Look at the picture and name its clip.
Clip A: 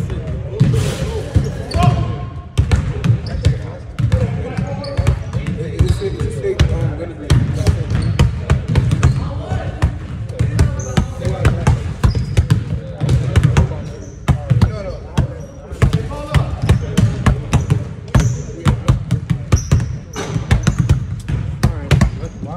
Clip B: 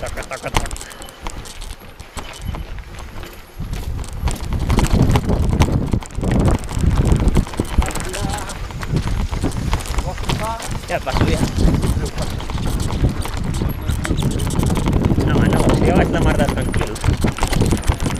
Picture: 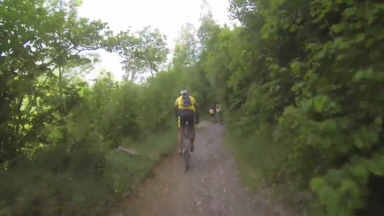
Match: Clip B